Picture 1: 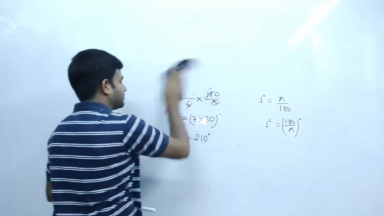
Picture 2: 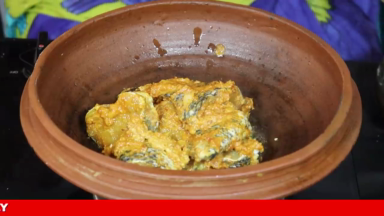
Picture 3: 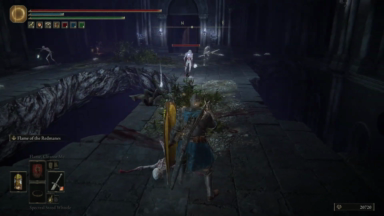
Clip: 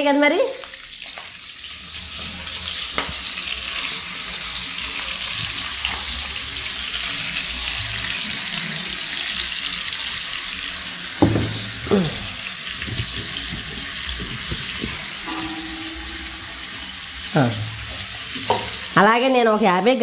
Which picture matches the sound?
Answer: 2